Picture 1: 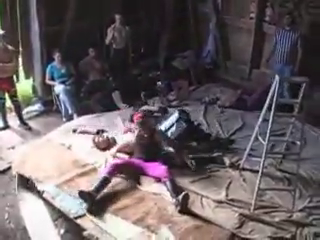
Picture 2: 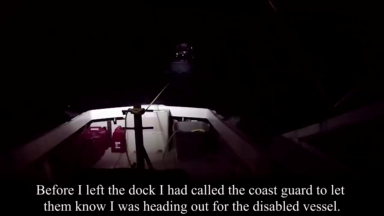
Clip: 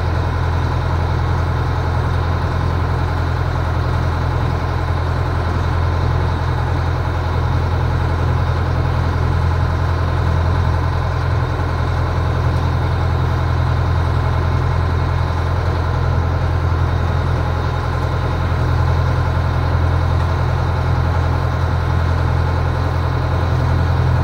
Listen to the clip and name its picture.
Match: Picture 2